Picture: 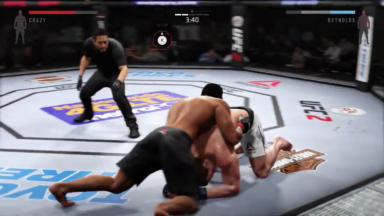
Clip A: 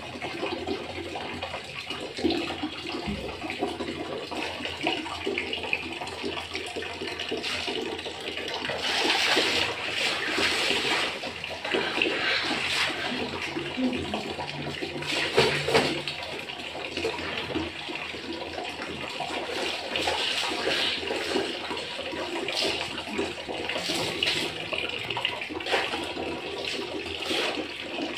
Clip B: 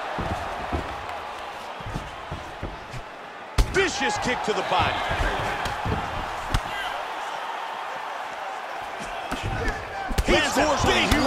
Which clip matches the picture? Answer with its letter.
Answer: B